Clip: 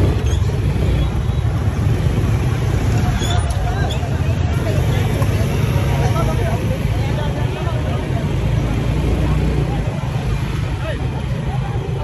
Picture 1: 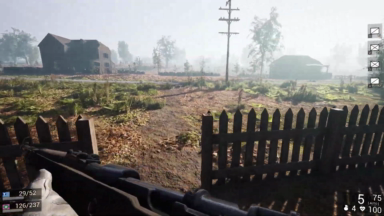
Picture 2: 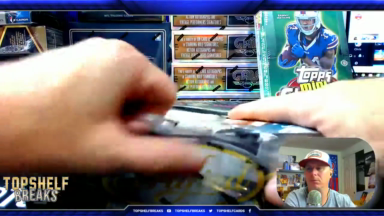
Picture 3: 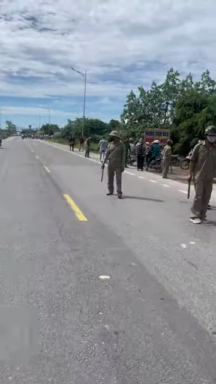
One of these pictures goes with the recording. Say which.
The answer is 3